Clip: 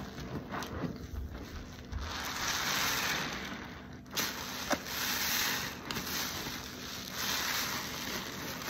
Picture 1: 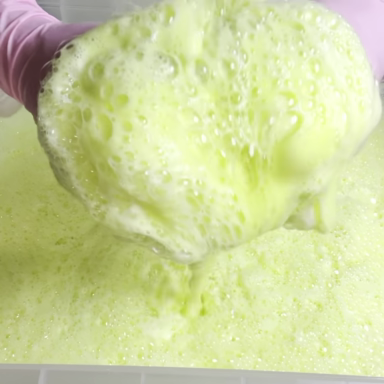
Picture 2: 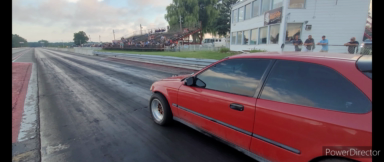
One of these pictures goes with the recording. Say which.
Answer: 1